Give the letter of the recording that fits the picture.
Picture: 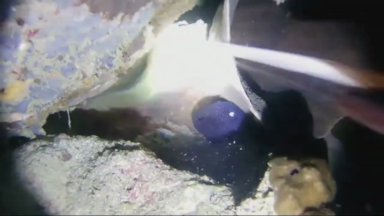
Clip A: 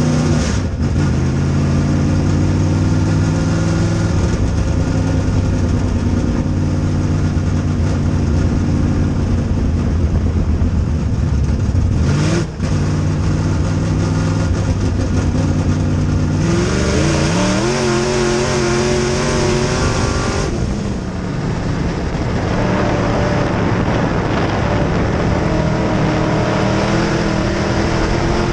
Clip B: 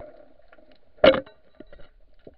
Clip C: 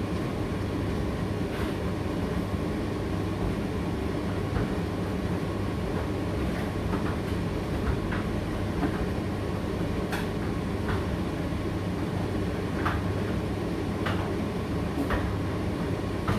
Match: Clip B